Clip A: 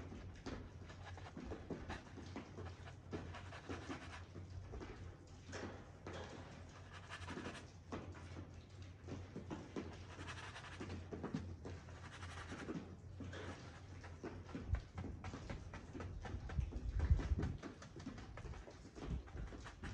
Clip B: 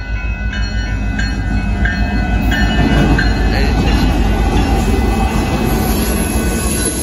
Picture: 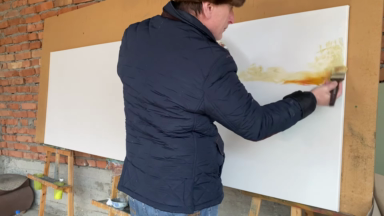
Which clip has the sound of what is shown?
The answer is A